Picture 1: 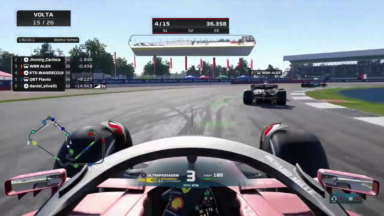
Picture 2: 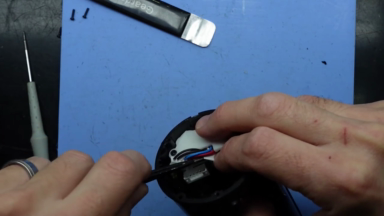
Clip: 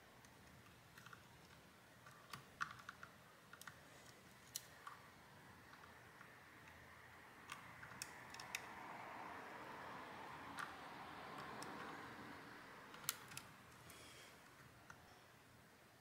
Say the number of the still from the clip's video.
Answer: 2